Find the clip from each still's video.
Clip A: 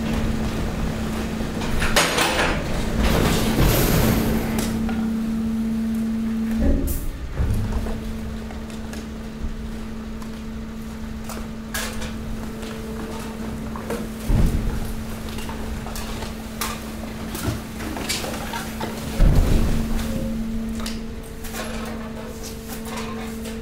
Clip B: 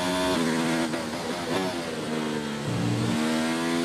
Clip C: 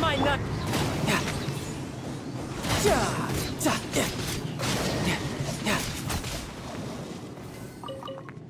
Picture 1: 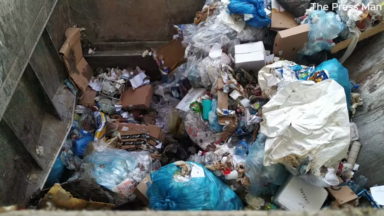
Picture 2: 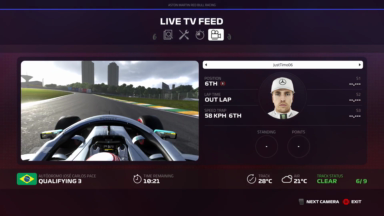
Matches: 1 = A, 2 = B